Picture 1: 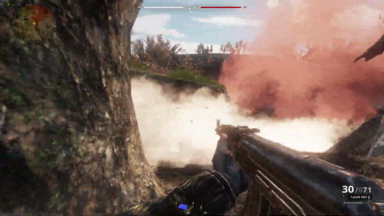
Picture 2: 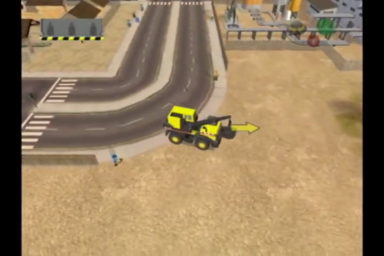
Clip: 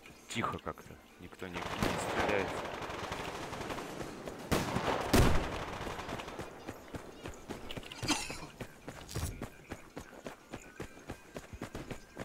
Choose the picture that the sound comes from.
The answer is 1